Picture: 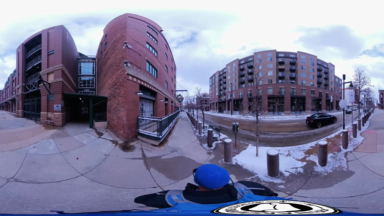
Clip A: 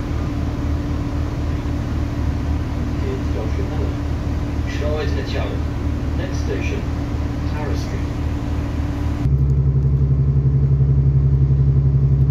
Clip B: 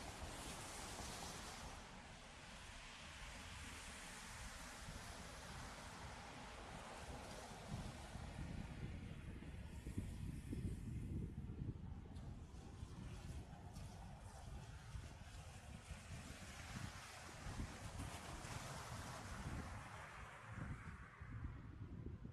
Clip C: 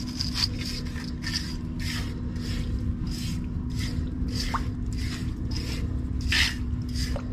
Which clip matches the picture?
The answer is B